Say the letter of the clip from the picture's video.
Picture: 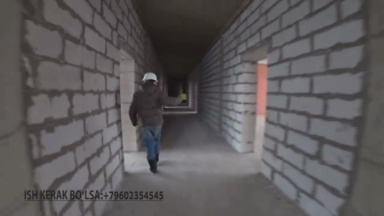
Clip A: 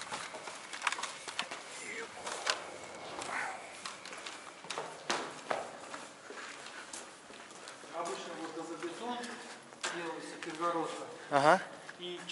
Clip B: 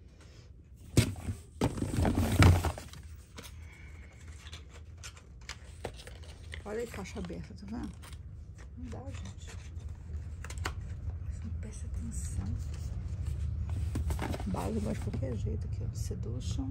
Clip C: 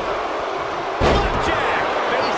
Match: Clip A